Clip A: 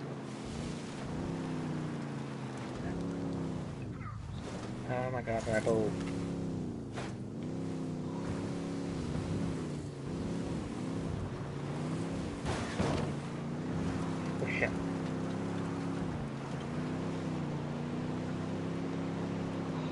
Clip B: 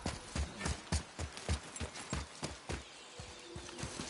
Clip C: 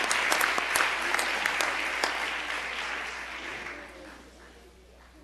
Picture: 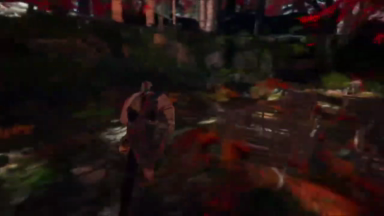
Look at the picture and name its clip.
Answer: B